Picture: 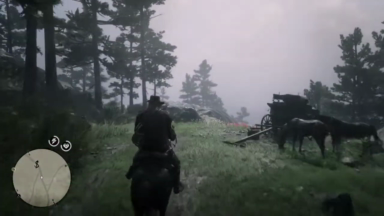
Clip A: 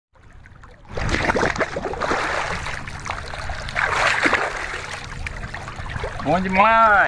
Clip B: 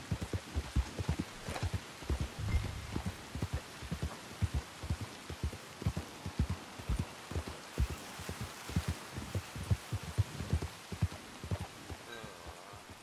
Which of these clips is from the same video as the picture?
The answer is B